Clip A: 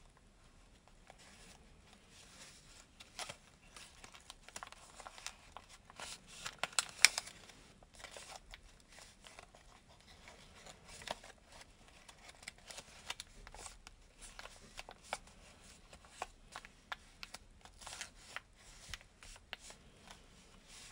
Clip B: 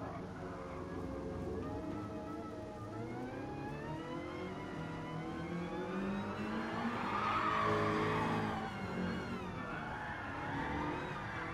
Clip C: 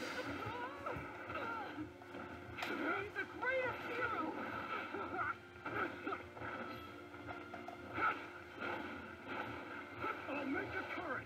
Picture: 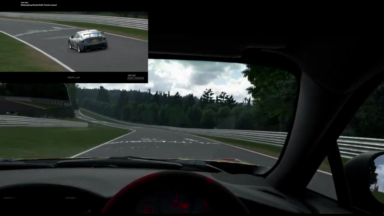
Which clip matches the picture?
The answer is B